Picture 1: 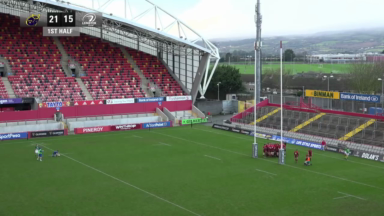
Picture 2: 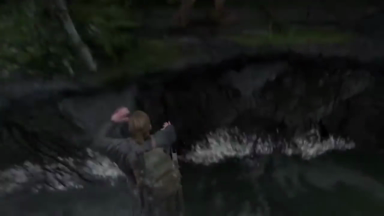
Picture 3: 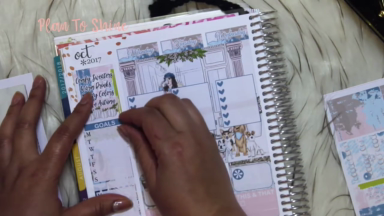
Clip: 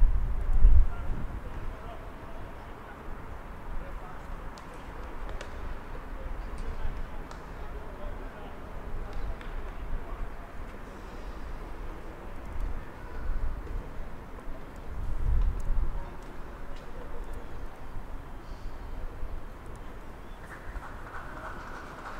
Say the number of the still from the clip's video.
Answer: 1